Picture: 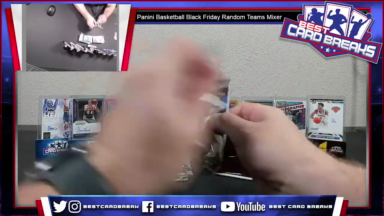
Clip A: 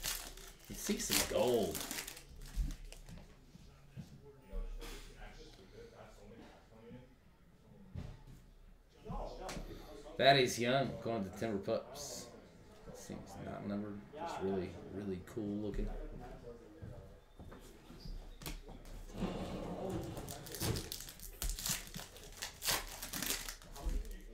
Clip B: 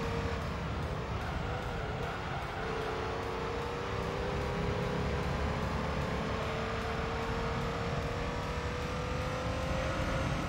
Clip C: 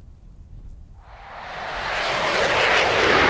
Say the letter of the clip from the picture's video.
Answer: A